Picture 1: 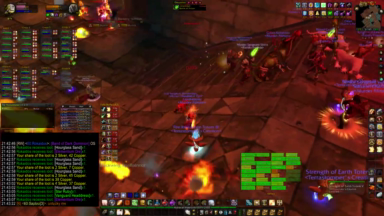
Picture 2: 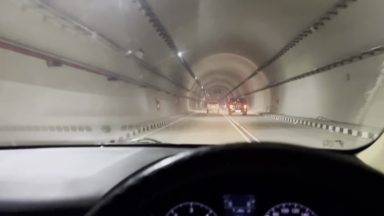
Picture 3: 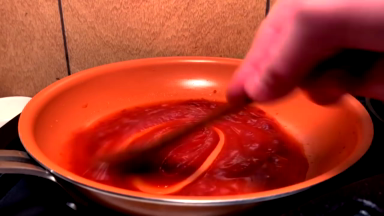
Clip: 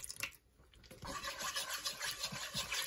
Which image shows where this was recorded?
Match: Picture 3